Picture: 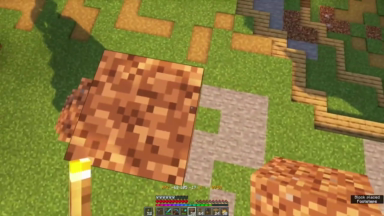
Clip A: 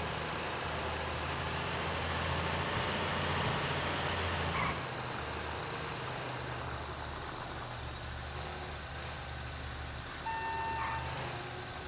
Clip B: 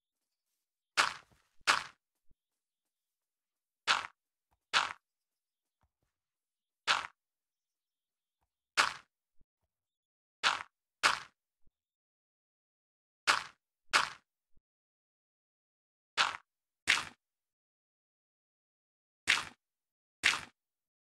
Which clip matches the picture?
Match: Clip B